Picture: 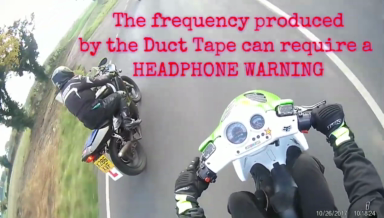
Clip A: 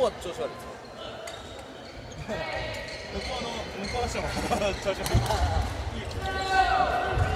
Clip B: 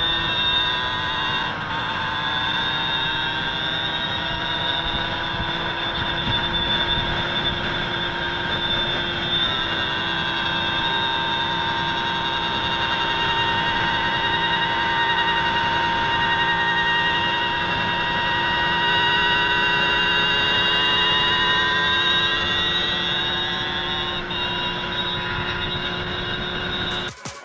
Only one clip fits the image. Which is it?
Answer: B